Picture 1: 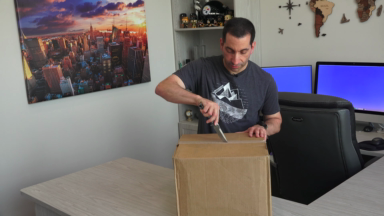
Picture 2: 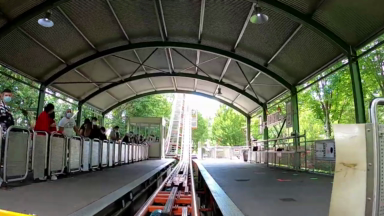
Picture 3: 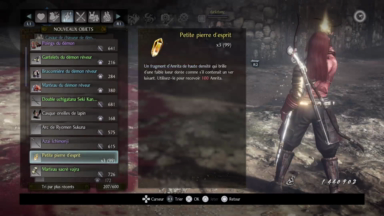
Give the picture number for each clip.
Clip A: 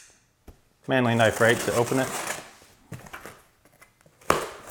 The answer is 1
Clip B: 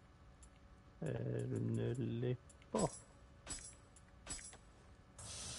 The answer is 3